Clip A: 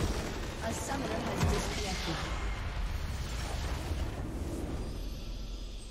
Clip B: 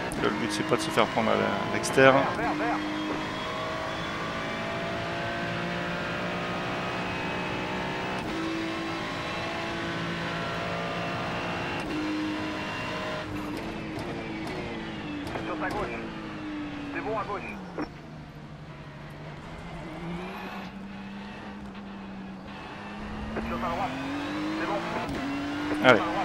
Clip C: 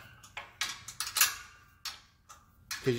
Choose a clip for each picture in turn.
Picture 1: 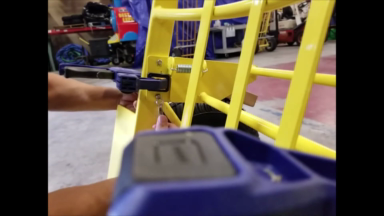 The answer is C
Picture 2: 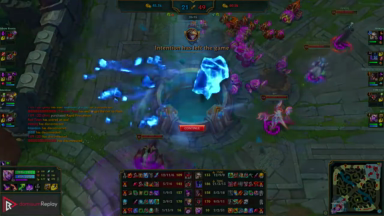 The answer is A